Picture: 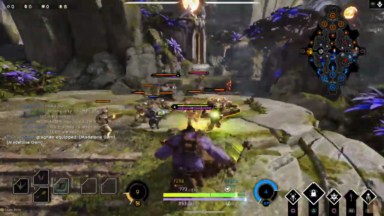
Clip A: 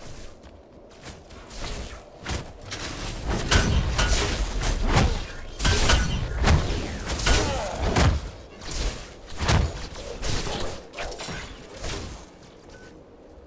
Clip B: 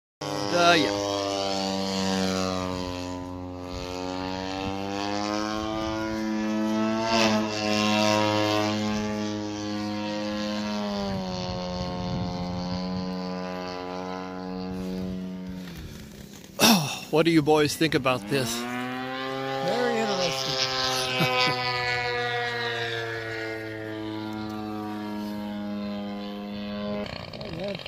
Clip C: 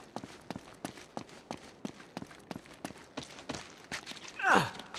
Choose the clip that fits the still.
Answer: A